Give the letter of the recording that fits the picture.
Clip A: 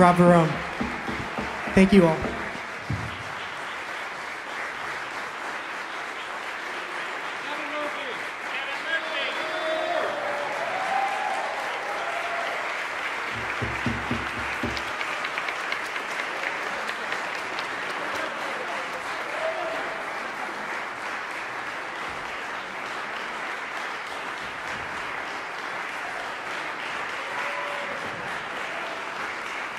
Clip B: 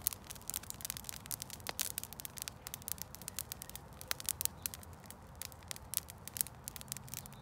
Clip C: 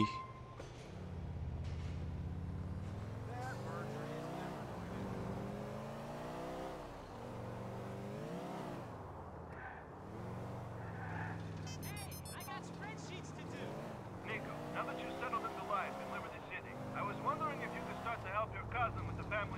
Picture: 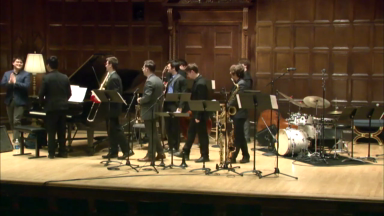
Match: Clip A